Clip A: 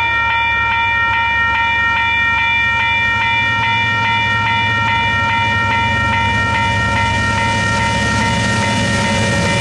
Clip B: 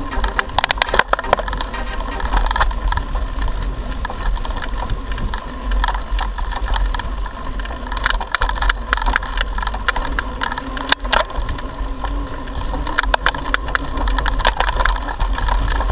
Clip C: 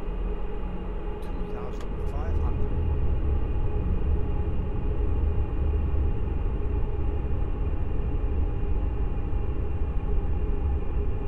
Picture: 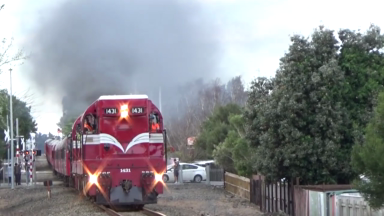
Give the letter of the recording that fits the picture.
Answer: A